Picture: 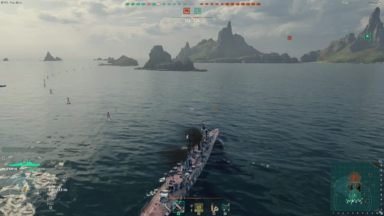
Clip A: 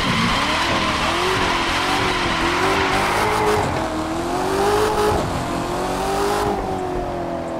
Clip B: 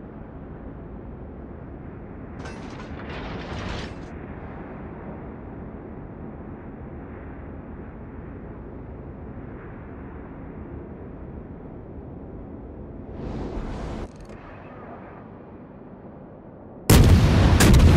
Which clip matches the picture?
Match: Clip B